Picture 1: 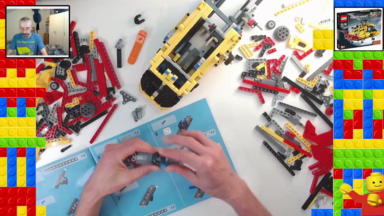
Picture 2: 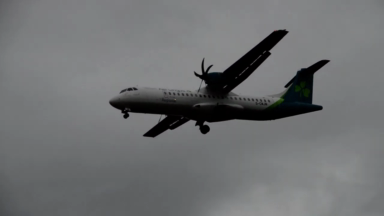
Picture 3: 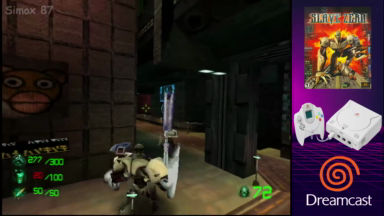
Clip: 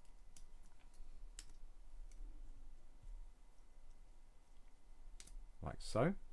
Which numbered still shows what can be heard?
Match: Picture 1